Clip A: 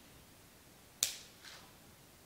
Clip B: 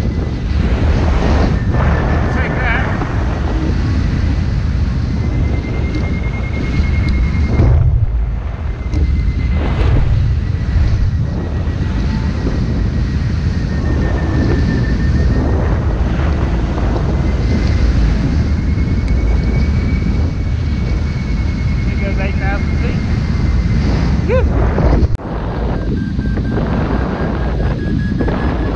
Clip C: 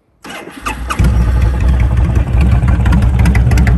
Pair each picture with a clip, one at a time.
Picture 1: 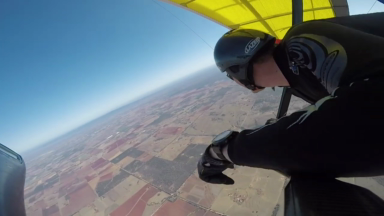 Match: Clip B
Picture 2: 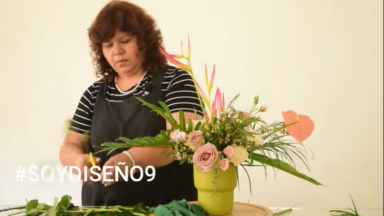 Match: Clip A